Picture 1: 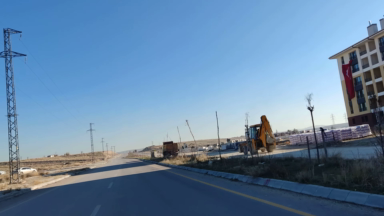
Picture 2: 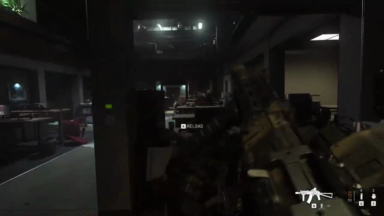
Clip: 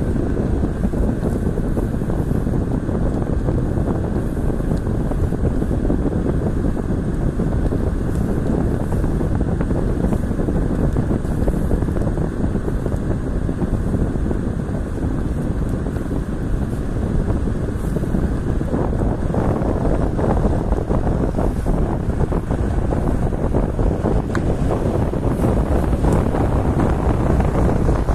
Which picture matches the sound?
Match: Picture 1